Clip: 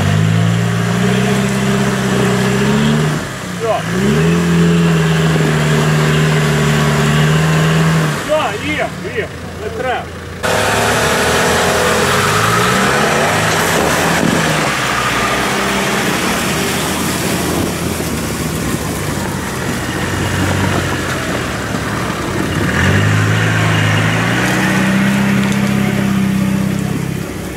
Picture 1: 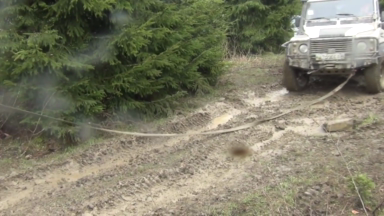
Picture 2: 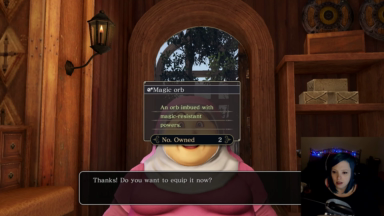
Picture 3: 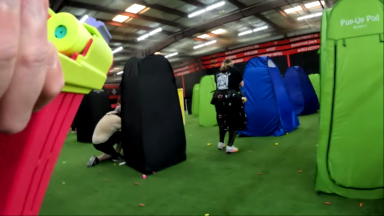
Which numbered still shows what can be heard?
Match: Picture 1